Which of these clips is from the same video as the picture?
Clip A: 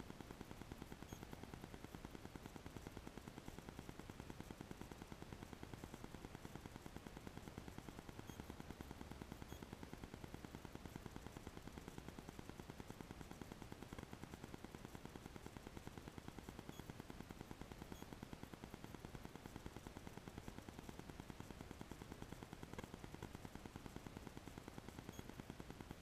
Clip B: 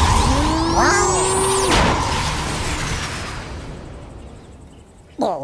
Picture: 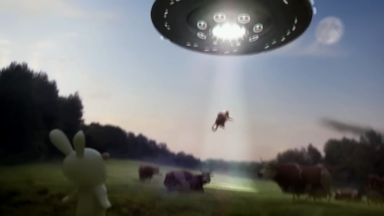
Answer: B